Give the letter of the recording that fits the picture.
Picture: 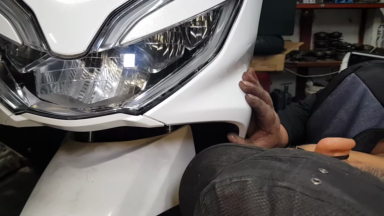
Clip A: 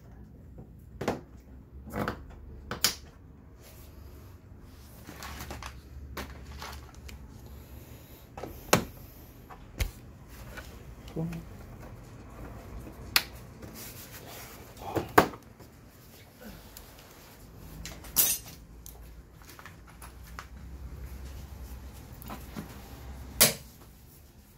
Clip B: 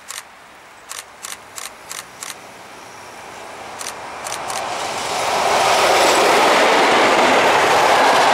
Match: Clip A